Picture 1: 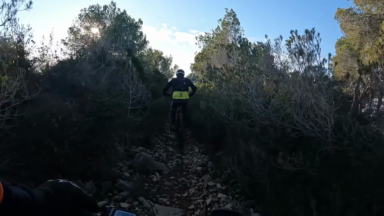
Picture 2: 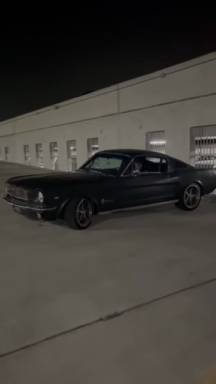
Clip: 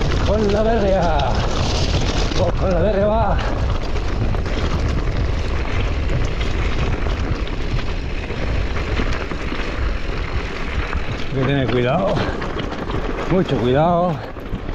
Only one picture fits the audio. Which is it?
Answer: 1